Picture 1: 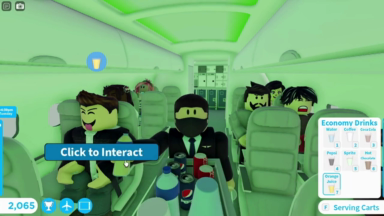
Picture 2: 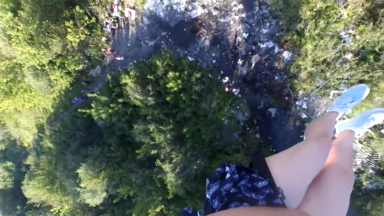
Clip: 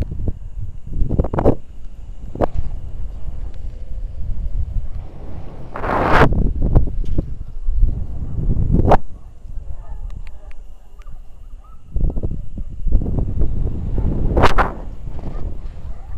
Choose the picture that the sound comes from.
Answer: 2